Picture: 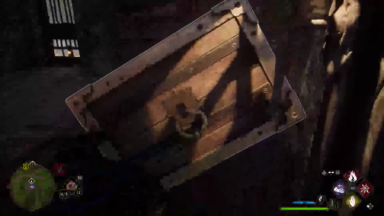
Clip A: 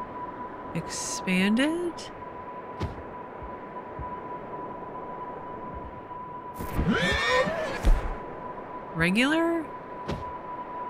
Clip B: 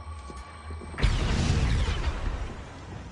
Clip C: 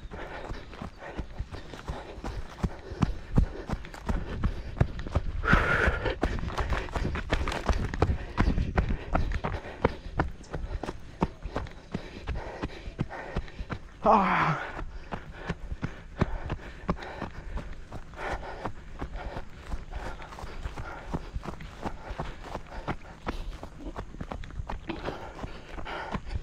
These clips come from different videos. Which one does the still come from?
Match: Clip B